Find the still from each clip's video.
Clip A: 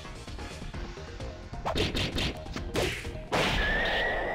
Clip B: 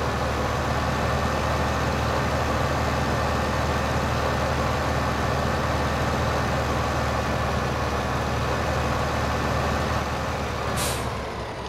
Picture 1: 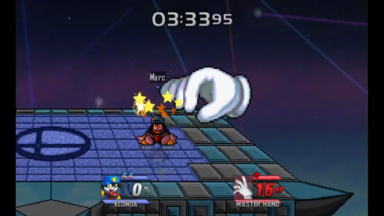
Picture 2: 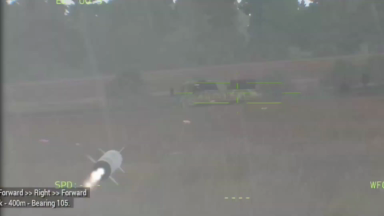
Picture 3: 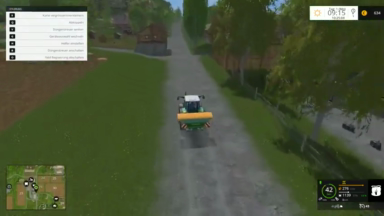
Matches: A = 1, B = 3